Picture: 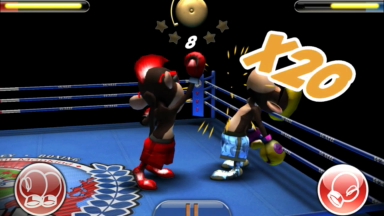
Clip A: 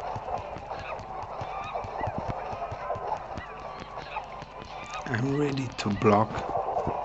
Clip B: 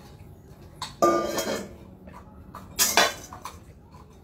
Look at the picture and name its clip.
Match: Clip A